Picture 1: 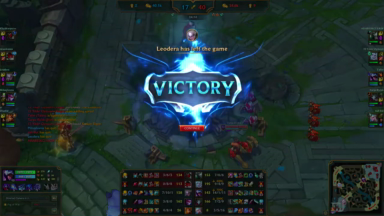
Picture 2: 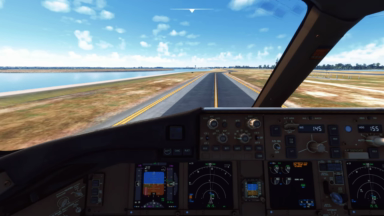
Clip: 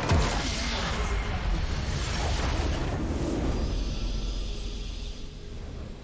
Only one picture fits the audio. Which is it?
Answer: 1